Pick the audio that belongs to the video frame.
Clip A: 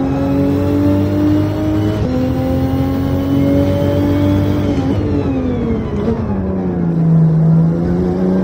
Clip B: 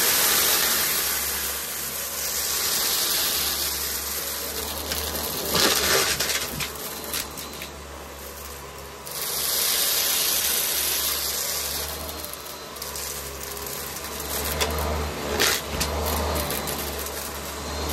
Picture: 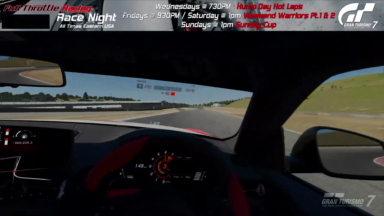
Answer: A